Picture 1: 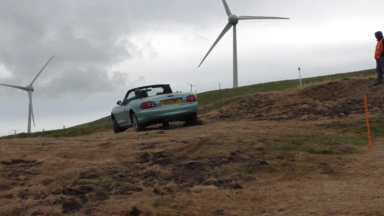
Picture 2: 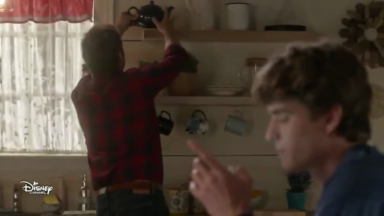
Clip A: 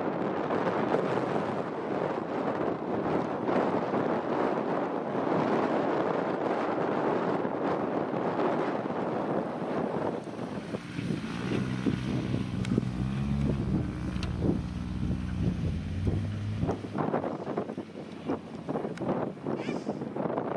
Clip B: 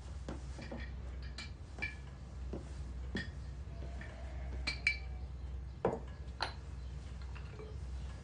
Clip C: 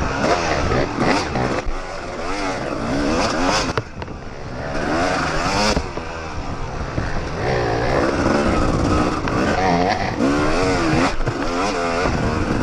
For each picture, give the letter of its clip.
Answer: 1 A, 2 B